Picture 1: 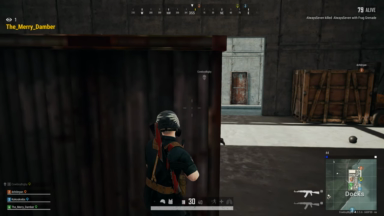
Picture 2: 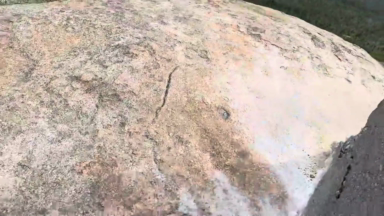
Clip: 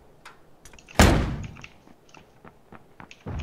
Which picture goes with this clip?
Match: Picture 1